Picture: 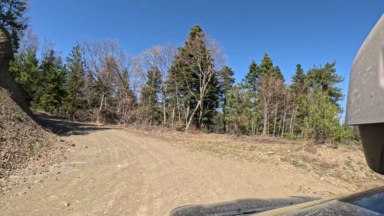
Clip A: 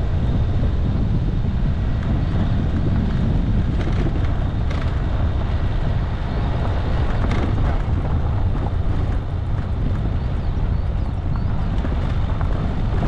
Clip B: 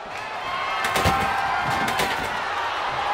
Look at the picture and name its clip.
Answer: A